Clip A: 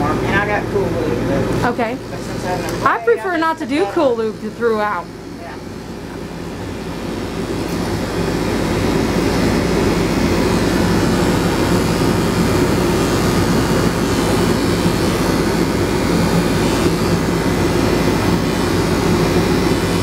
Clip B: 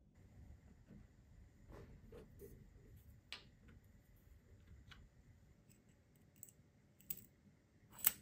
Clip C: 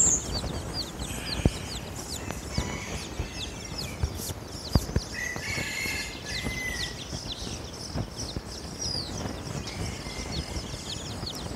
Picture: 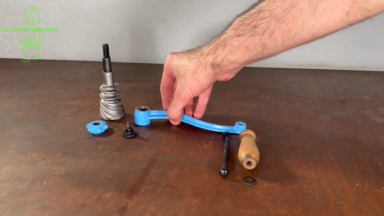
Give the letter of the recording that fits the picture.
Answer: B